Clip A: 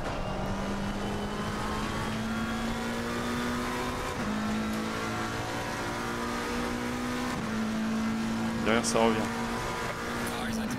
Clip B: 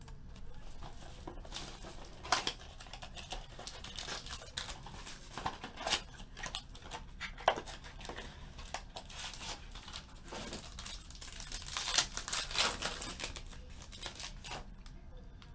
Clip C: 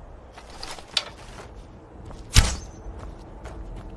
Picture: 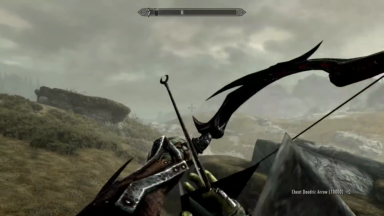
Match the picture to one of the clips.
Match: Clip C